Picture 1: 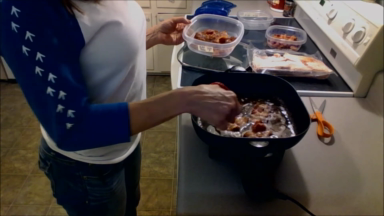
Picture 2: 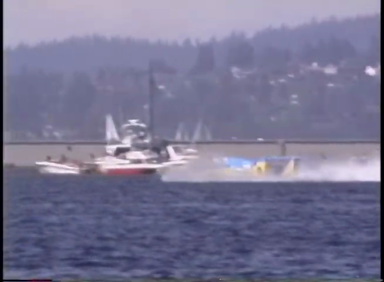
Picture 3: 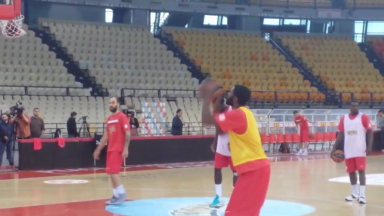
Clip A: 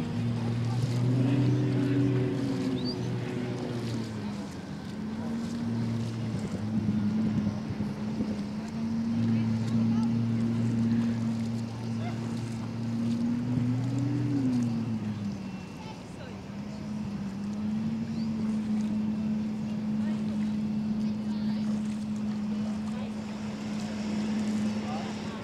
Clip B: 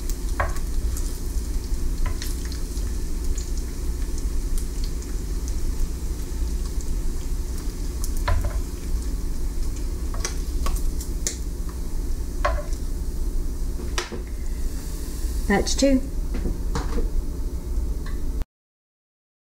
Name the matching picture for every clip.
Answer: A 2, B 1